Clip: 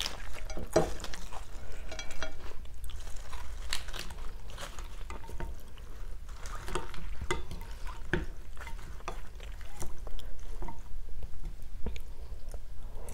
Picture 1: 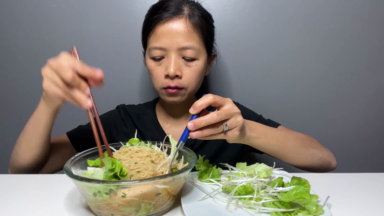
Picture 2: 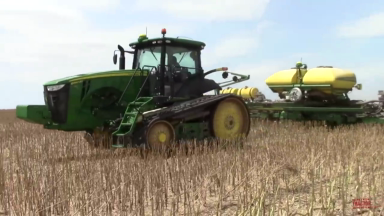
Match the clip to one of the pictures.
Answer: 1